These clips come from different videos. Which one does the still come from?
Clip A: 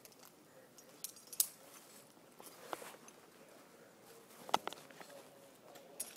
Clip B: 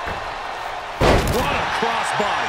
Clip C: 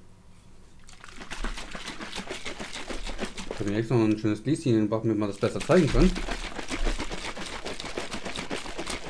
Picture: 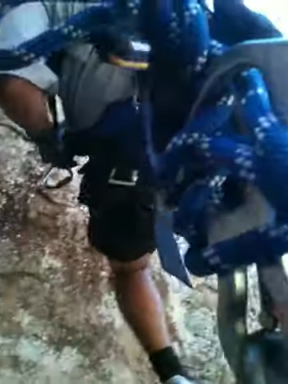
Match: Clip A